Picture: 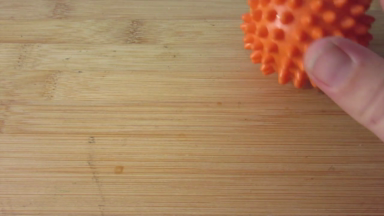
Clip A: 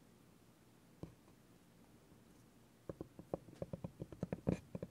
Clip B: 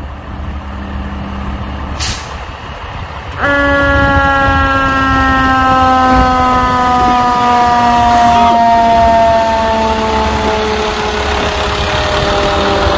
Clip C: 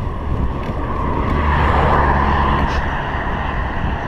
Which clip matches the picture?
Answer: A